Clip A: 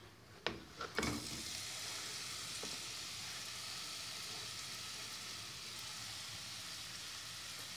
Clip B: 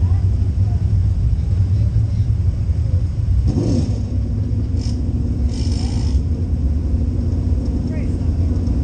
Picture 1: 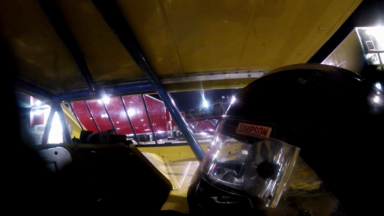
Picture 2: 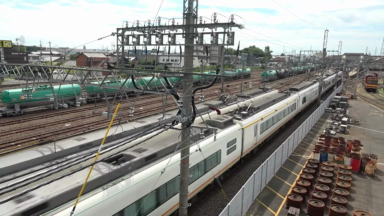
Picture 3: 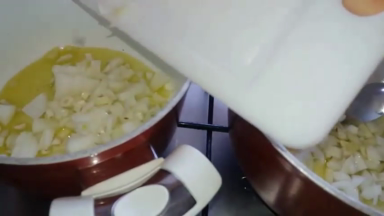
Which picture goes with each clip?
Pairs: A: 3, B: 1